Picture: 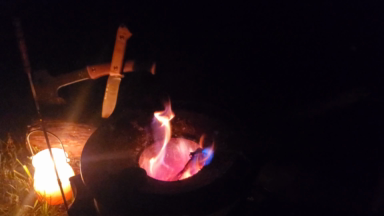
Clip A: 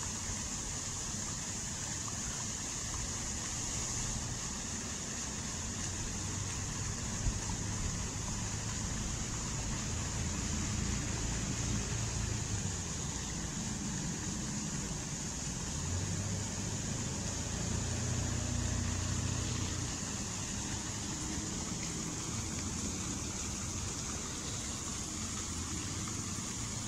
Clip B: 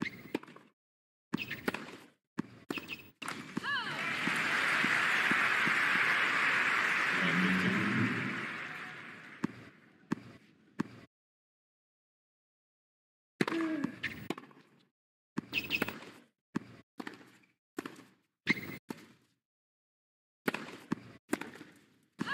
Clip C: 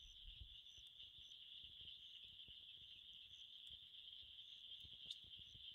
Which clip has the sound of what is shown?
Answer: C